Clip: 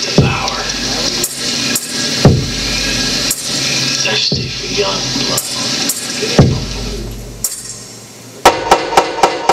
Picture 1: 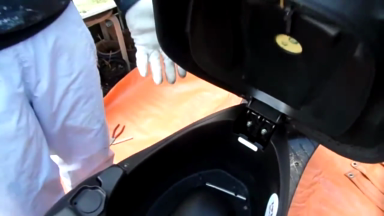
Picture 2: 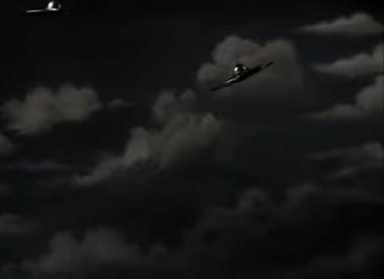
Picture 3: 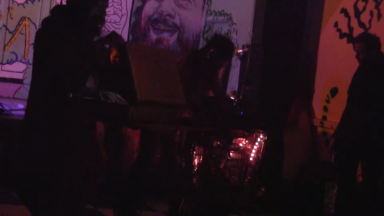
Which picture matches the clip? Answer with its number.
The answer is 3